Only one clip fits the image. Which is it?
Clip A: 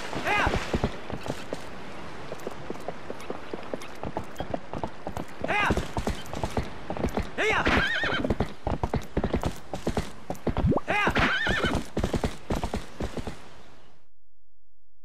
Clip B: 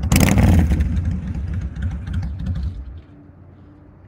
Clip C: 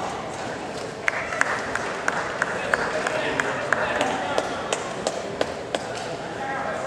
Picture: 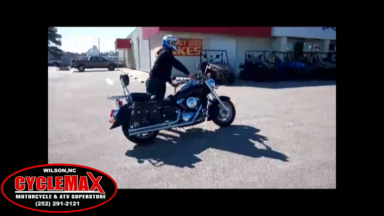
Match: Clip B